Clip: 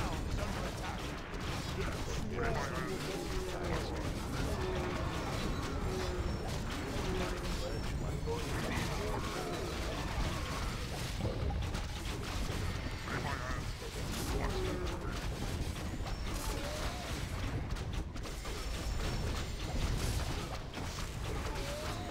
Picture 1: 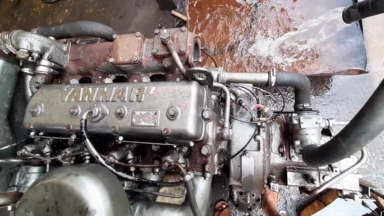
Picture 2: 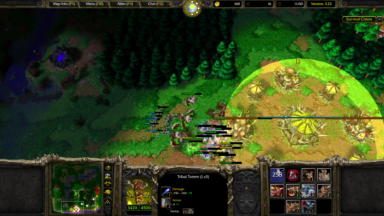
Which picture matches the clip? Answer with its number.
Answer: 2